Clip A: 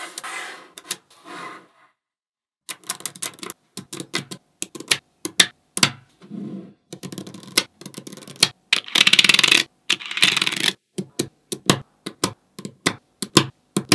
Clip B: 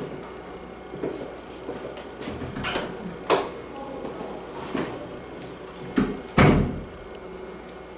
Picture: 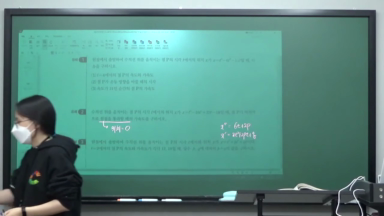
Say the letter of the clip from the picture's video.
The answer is B